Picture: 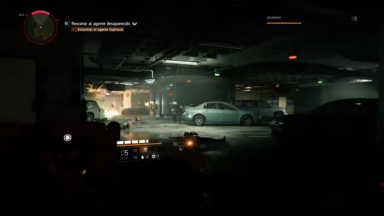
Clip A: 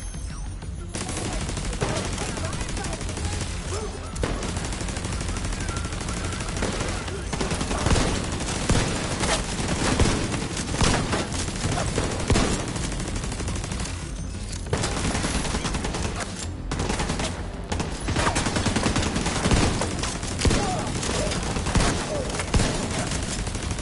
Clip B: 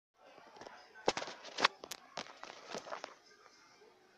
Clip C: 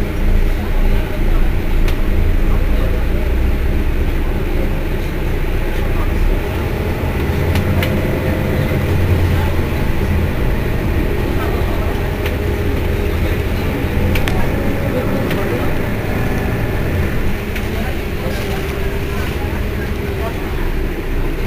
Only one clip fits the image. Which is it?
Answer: A